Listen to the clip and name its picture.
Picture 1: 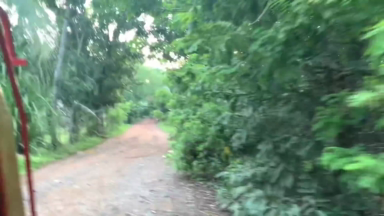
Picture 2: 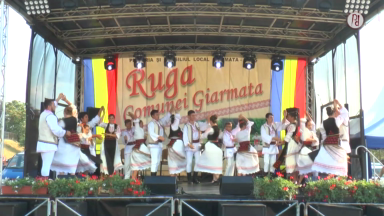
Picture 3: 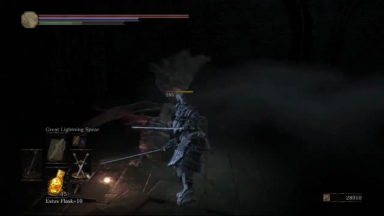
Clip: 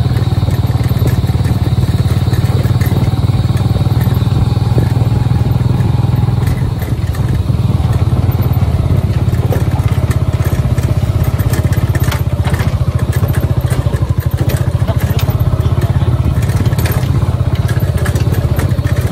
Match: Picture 1